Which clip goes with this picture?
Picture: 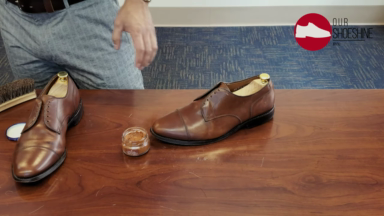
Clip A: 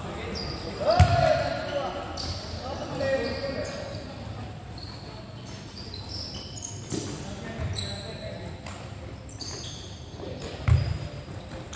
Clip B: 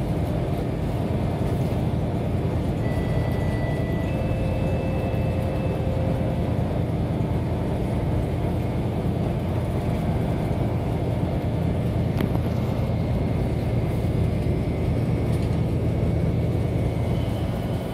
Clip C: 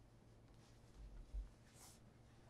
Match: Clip C